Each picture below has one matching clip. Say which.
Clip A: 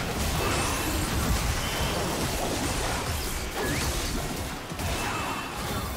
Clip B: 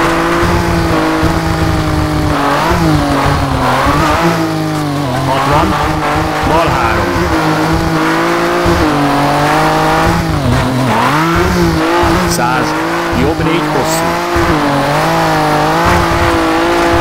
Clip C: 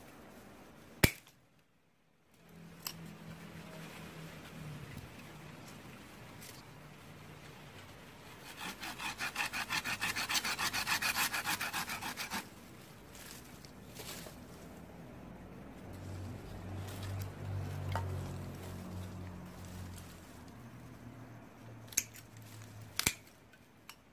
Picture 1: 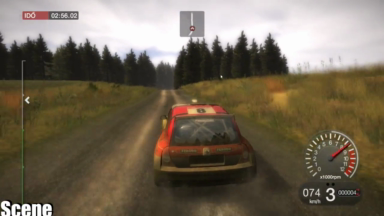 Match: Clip B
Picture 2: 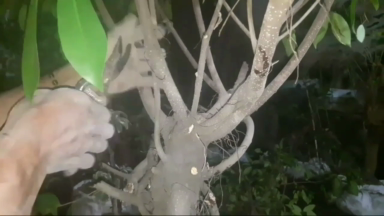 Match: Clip C